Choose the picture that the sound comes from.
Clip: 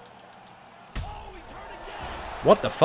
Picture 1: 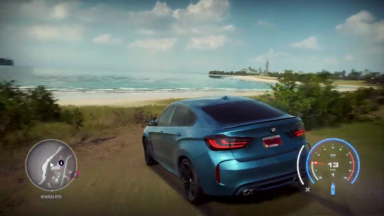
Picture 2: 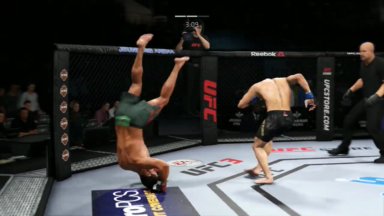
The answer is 2